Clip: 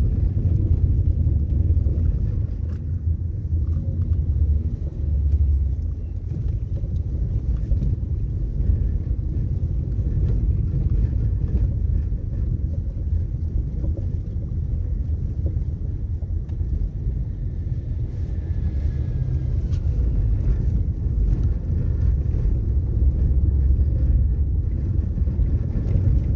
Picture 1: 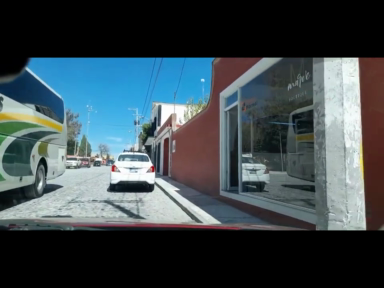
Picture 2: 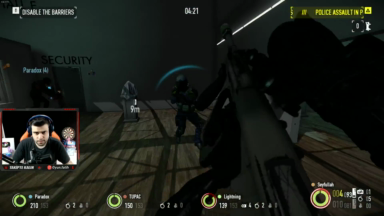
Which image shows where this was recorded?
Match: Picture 1